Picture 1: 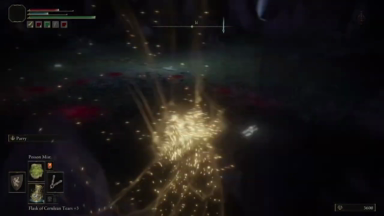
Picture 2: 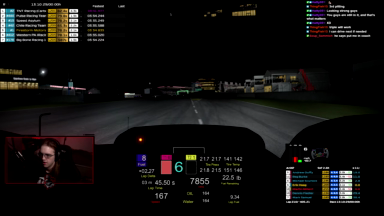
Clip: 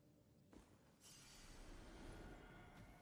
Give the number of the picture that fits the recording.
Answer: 1